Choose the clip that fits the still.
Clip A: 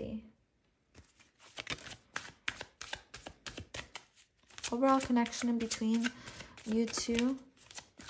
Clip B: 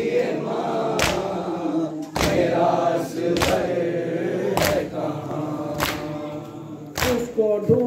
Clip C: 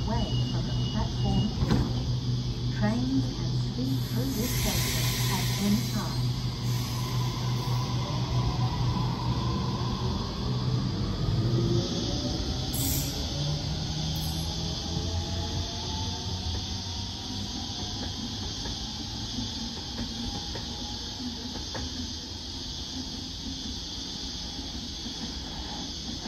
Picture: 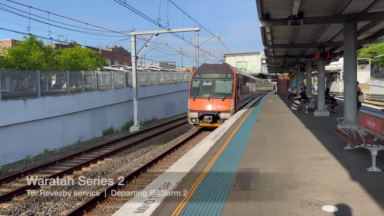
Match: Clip C